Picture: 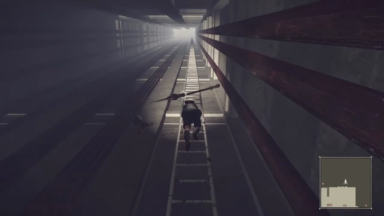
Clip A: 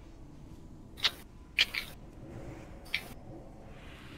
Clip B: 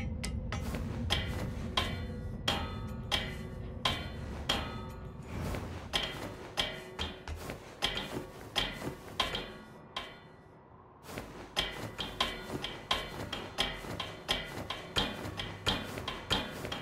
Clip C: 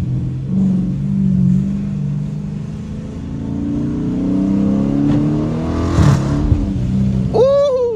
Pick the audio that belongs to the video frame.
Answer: B